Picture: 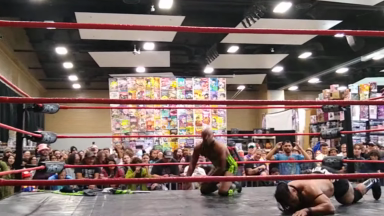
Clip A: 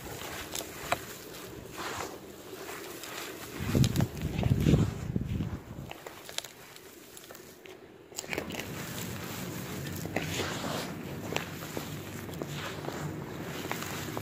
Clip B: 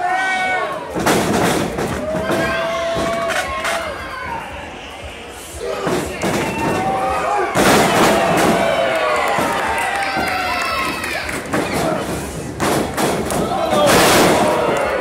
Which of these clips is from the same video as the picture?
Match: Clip B